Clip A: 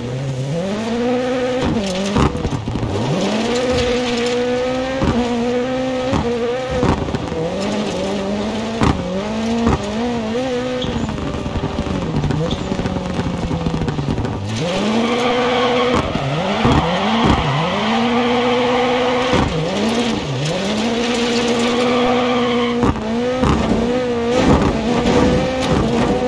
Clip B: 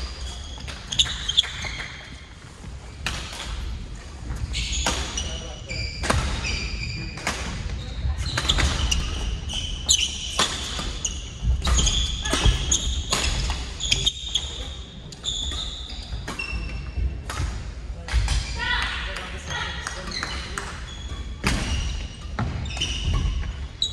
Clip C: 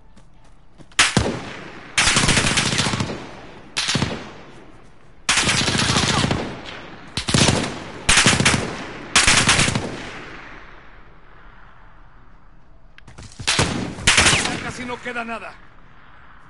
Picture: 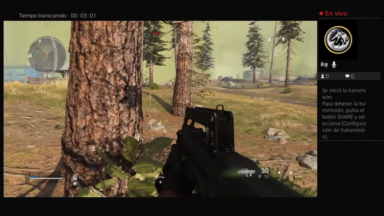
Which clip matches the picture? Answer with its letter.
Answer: C